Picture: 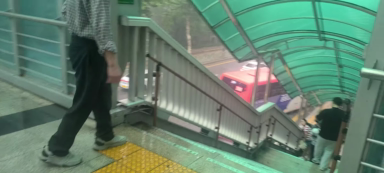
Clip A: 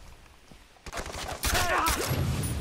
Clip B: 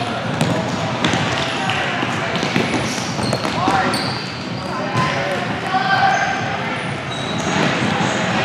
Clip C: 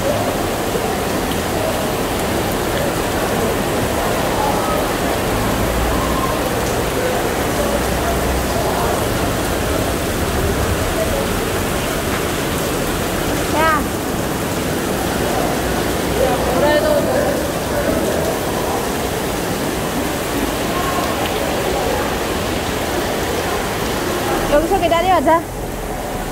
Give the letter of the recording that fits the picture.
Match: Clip C